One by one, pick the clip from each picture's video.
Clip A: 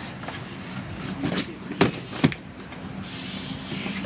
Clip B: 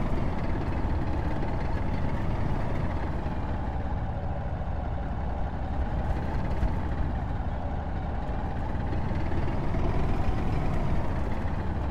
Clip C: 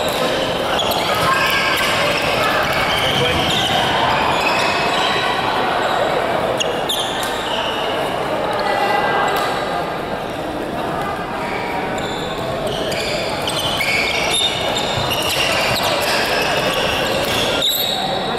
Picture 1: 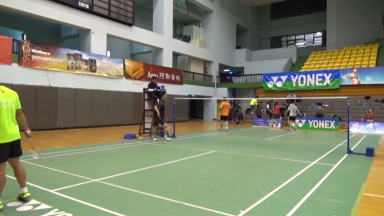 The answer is C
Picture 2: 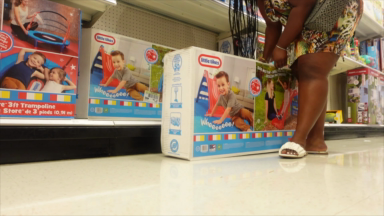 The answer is A